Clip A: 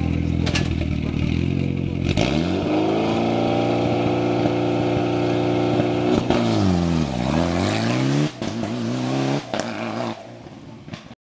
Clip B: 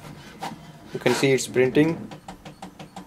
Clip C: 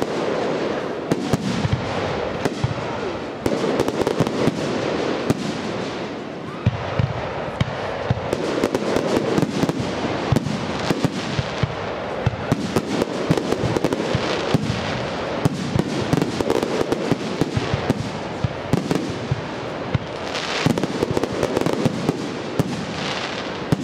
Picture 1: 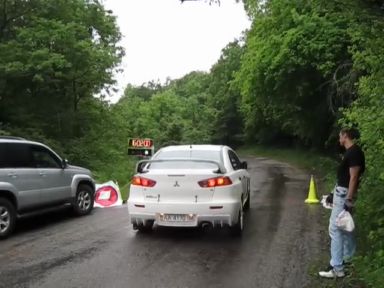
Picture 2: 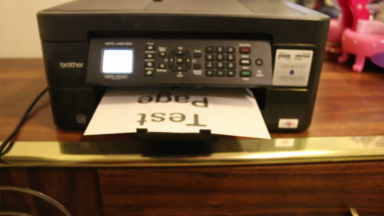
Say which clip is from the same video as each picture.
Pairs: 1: A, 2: B